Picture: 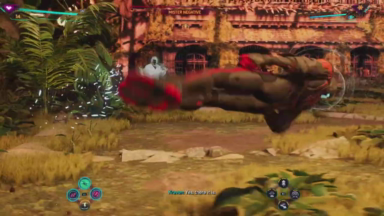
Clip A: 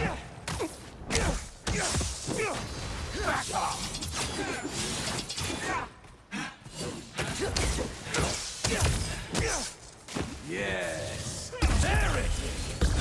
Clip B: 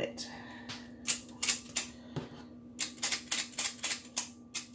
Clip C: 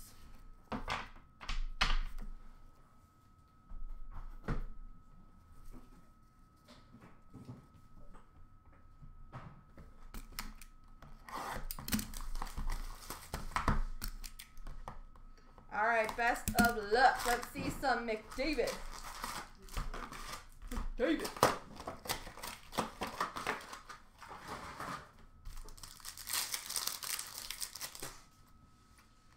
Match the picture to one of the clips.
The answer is A